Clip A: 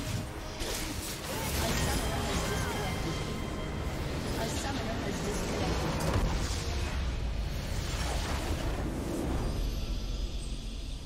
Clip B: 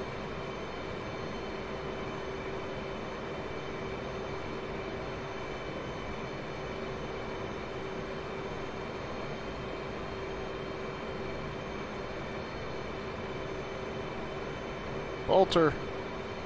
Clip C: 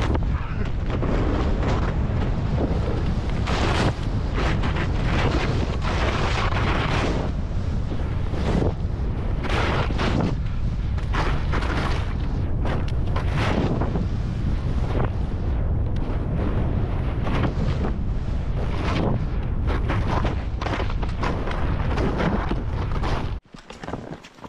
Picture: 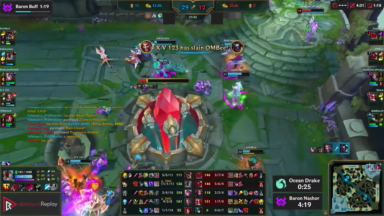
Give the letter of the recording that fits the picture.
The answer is A